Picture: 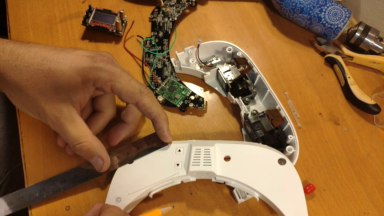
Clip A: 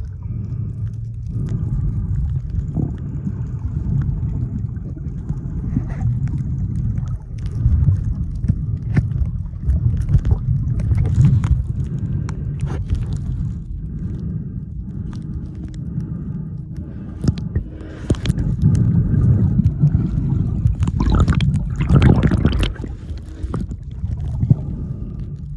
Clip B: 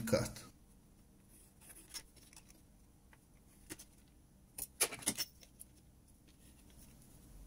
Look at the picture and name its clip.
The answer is B